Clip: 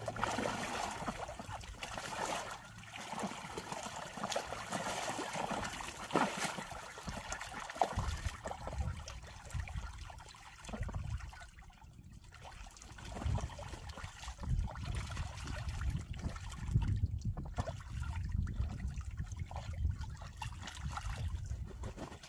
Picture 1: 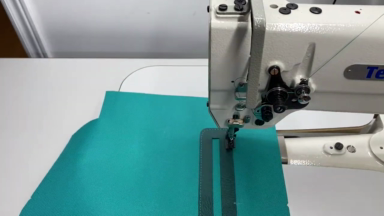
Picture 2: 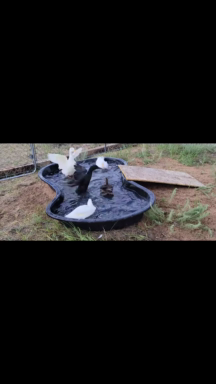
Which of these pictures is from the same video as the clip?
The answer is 2